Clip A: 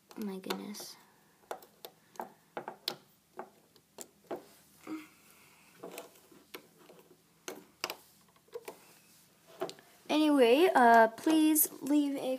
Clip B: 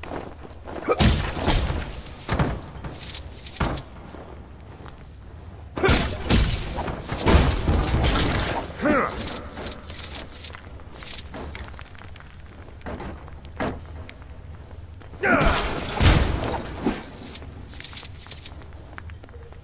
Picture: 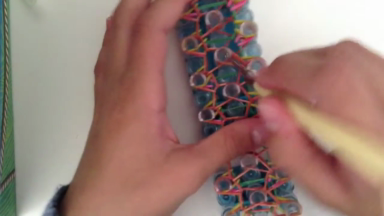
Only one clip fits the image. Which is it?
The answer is A